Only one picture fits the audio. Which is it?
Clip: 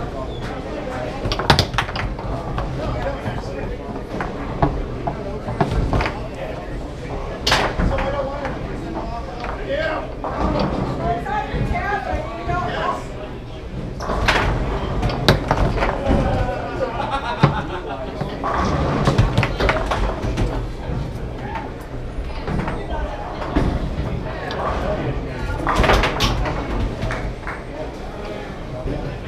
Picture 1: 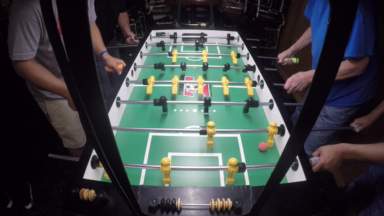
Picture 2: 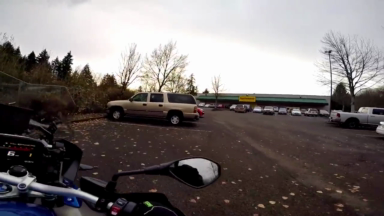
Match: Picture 1